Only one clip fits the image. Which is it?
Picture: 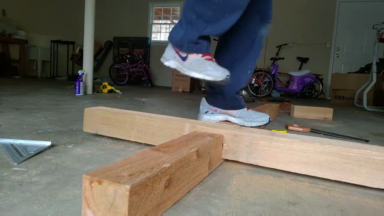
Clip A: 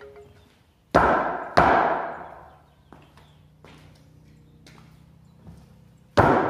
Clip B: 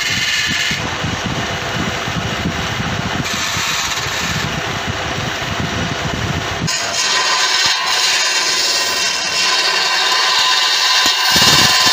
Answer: A